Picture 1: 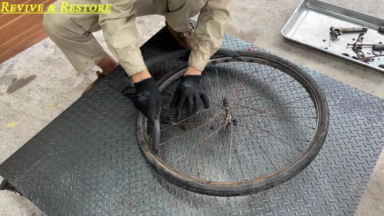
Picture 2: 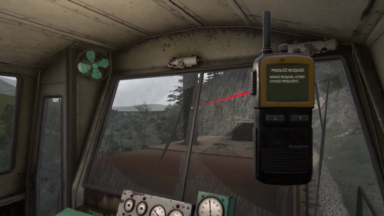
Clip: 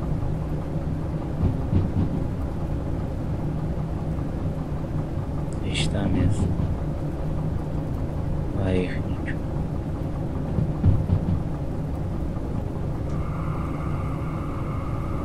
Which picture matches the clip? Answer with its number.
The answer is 2